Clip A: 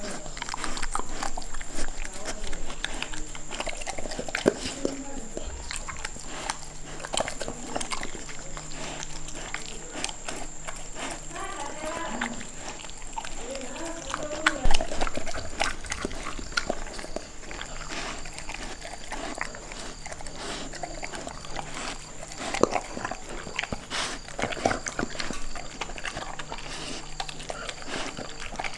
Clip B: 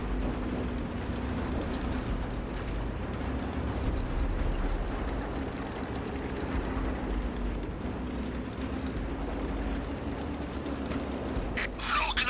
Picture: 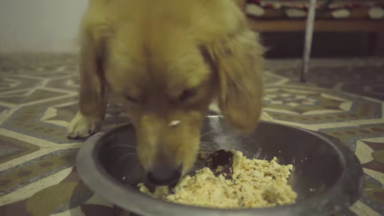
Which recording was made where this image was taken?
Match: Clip A